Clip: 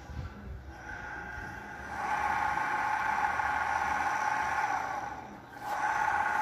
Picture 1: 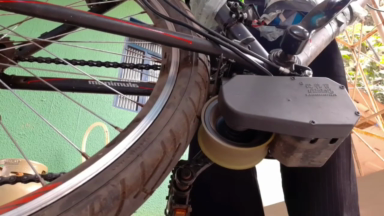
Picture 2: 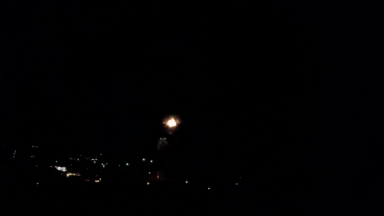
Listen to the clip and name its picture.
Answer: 1